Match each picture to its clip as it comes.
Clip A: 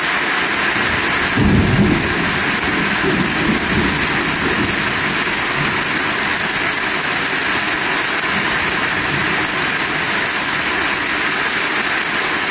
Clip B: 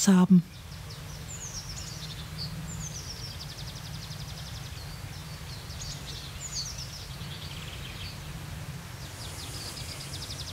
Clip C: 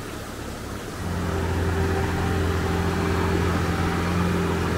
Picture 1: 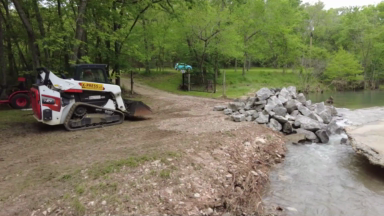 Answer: C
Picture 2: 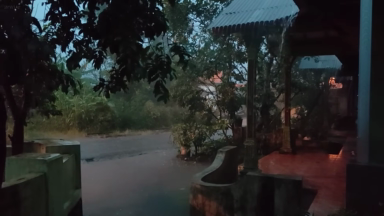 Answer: A